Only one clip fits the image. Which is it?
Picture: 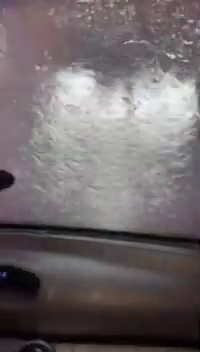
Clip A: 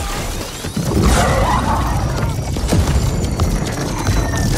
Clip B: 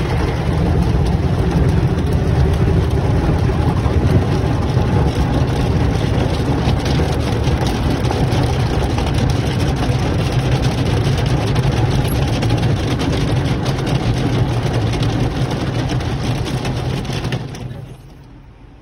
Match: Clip B